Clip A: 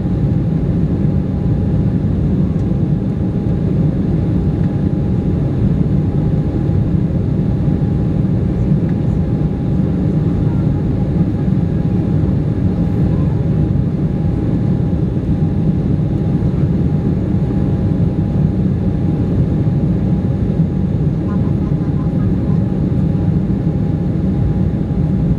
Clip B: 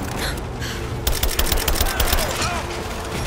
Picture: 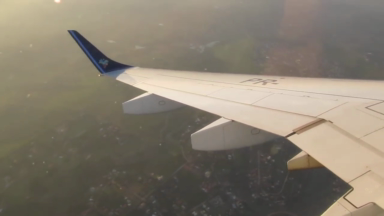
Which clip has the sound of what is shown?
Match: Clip A